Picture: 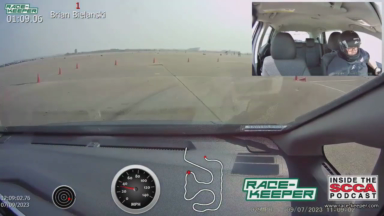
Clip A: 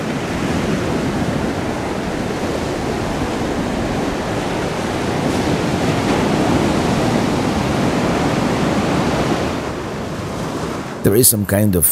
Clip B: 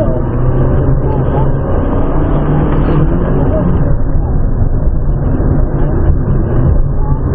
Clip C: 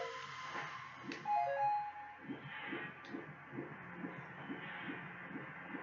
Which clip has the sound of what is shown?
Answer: B